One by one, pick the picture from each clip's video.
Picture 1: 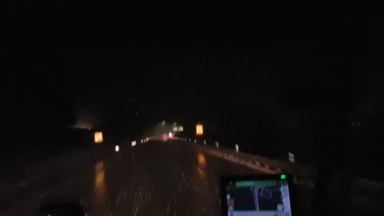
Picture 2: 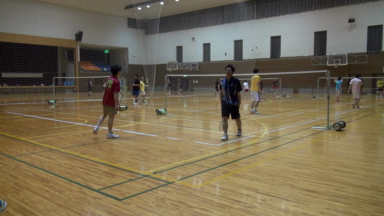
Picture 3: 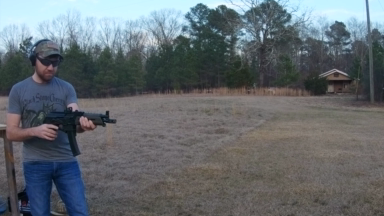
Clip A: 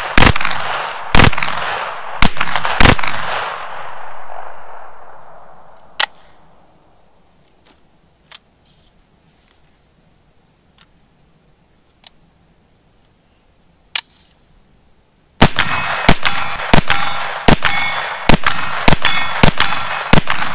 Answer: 3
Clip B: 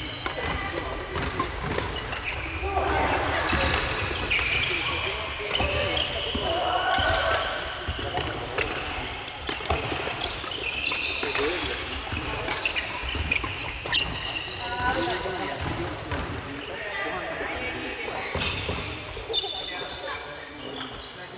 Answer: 2